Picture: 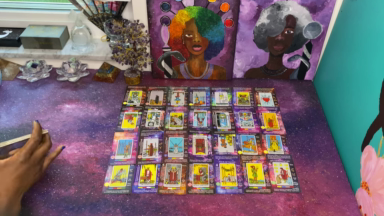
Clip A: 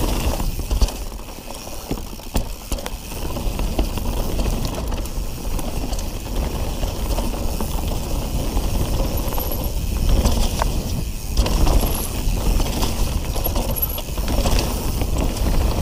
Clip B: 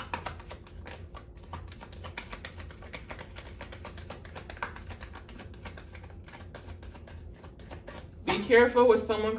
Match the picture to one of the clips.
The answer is B